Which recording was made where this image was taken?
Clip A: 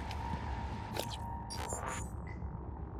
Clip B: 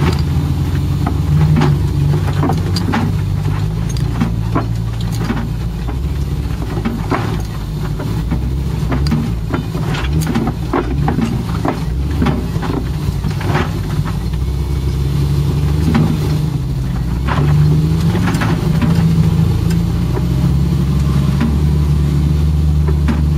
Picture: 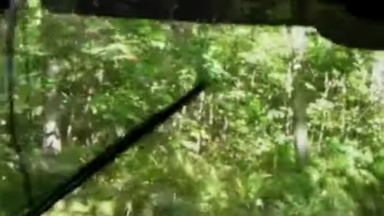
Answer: B